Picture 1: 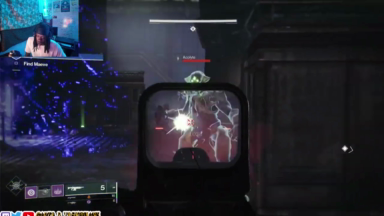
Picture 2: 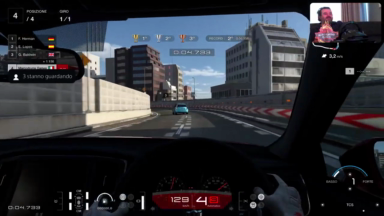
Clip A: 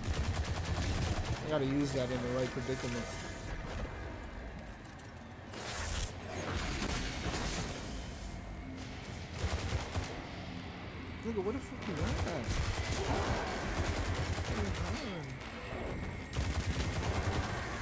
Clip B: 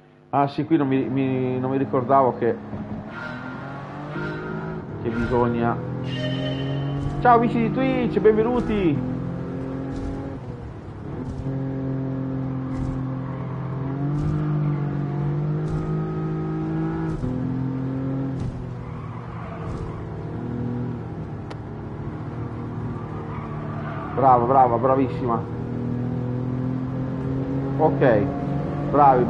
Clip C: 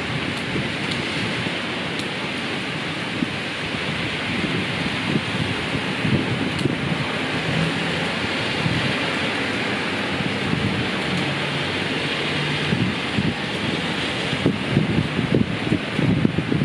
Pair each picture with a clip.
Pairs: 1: A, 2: B